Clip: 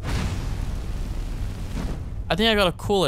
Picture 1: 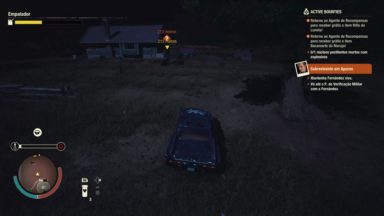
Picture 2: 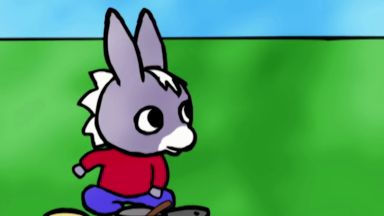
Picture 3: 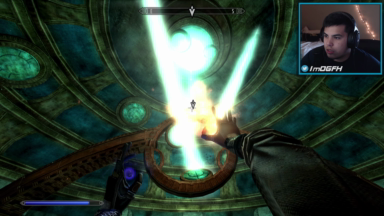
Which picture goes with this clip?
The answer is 3